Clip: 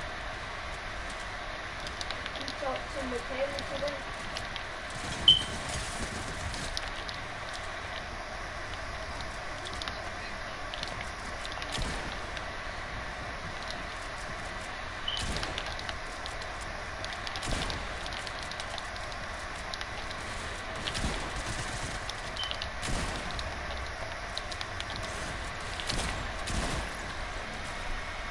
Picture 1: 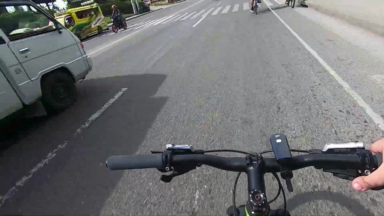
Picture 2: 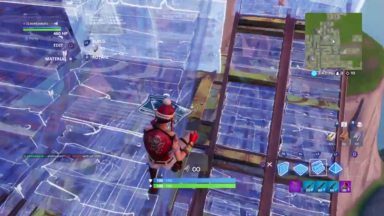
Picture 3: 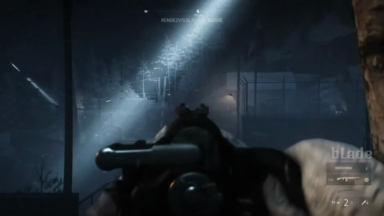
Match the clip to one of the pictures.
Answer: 2